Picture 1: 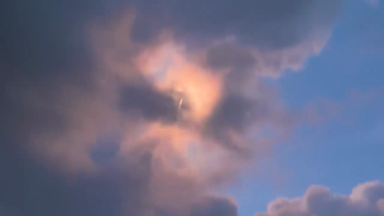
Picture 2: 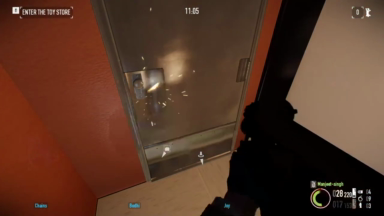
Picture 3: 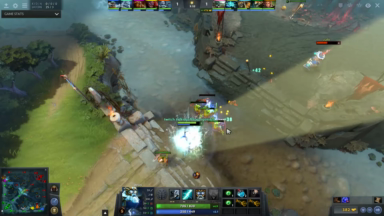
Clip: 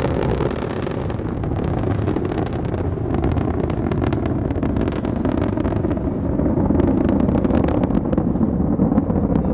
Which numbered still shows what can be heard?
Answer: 1